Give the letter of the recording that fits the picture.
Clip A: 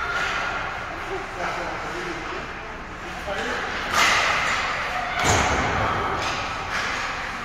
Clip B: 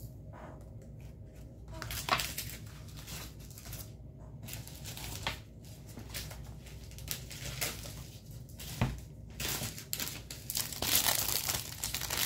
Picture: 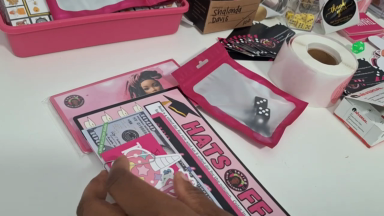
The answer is B